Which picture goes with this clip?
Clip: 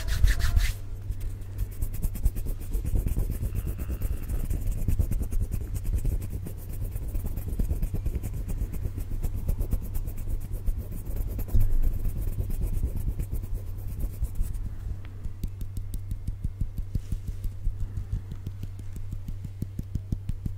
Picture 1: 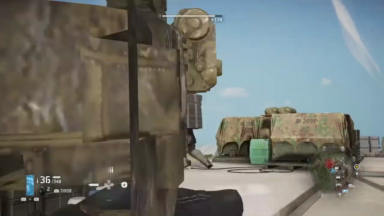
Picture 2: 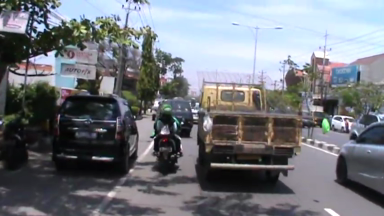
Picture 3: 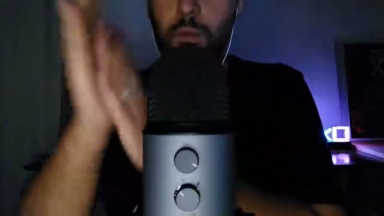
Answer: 3